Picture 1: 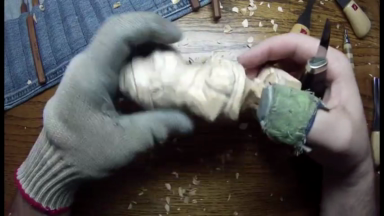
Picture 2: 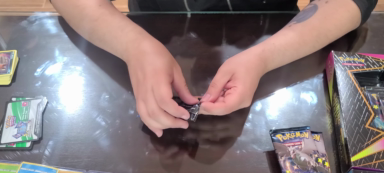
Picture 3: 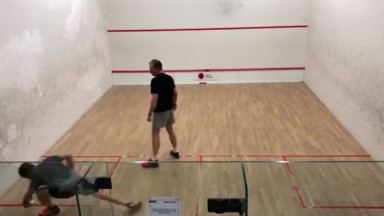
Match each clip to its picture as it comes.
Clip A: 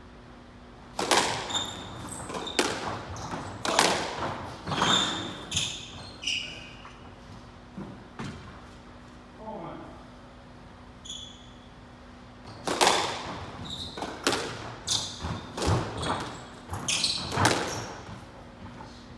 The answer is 3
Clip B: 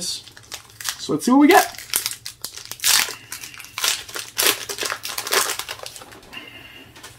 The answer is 2